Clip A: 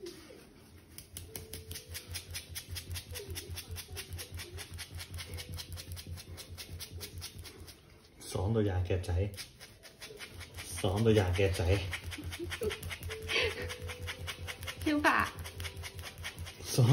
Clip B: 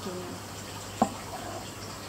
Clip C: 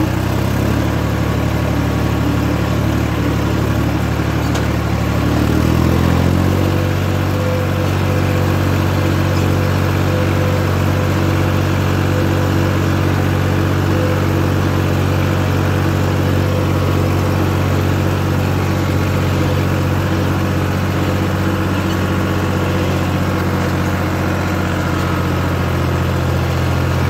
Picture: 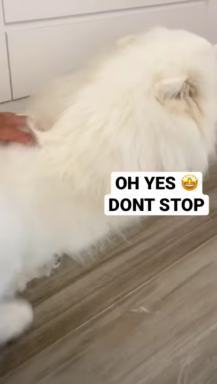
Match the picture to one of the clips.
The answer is A